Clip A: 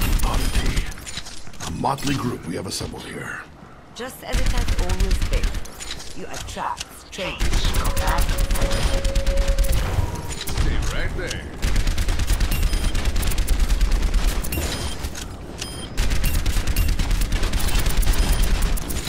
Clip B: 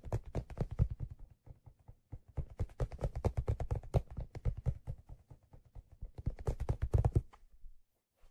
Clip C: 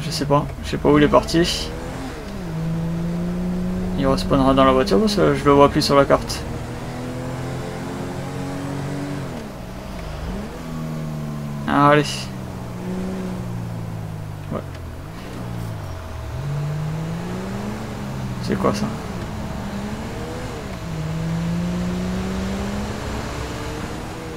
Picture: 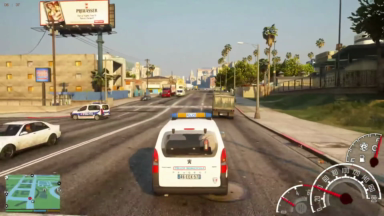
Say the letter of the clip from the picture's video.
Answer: C